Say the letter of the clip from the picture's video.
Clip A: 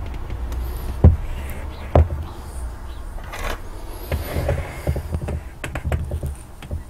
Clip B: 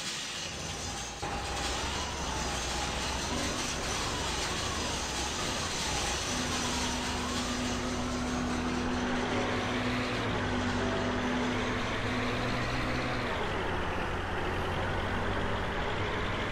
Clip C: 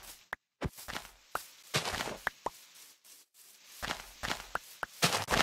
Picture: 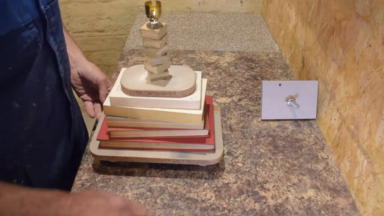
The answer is A